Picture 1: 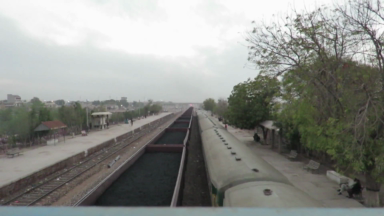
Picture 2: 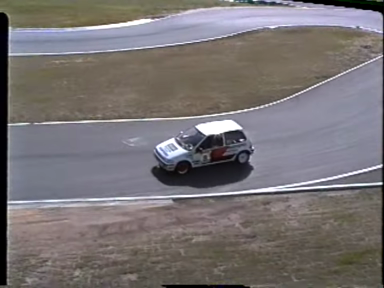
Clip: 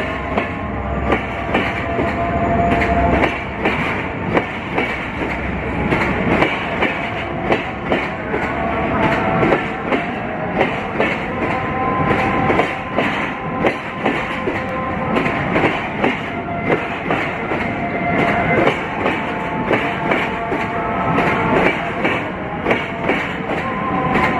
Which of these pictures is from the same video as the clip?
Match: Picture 1